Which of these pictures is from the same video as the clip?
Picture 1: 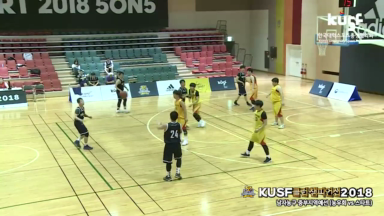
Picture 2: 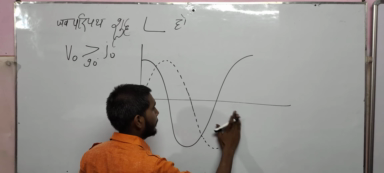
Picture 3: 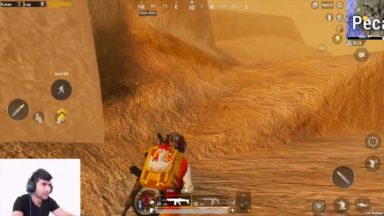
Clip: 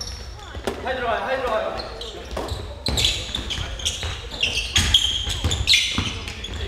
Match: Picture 1